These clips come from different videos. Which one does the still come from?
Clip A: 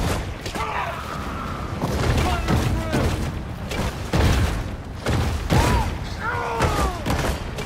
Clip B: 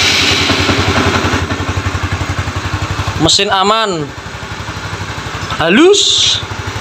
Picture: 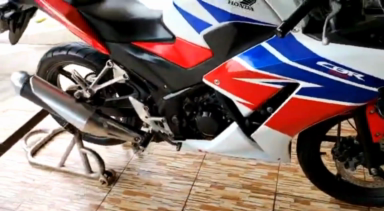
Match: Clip B